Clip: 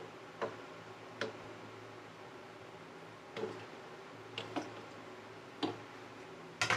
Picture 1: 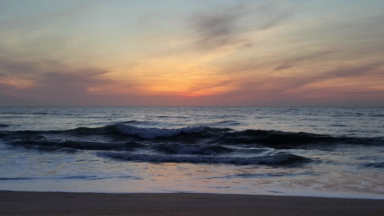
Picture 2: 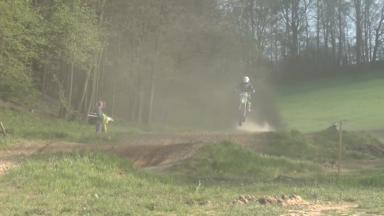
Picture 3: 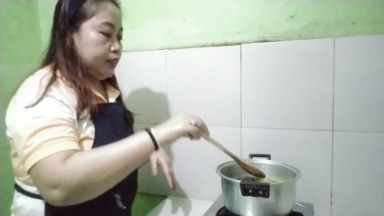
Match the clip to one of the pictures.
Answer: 3